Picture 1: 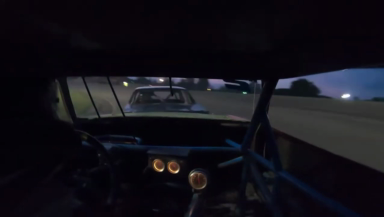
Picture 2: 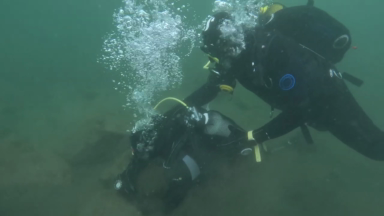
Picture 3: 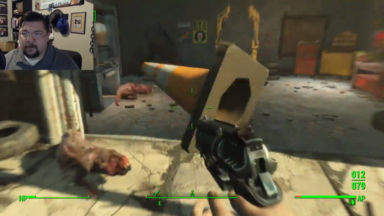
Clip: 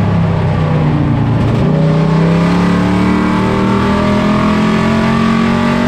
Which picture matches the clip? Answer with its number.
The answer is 1